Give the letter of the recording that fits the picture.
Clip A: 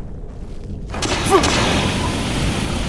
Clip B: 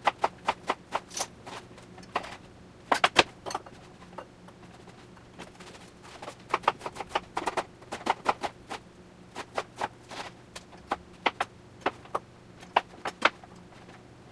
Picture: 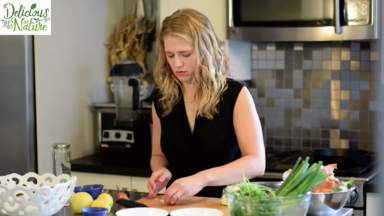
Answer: B